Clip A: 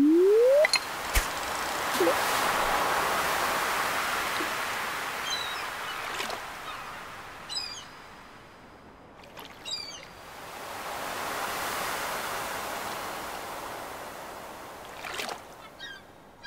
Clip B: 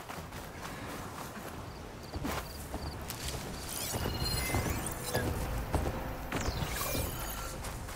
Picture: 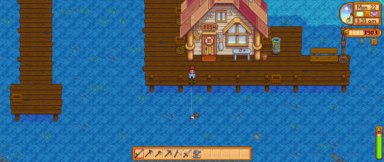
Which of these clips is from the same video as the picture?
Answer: A